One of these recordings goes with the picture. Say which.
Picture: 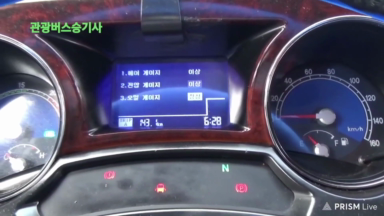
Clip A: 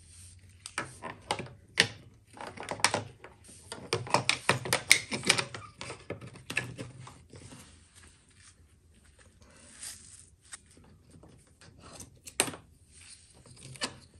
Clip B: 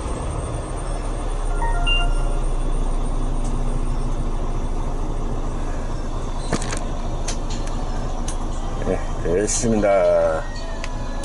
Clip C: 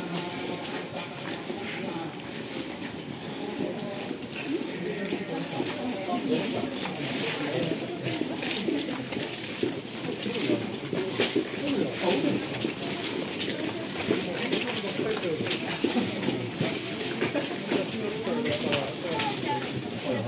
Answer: B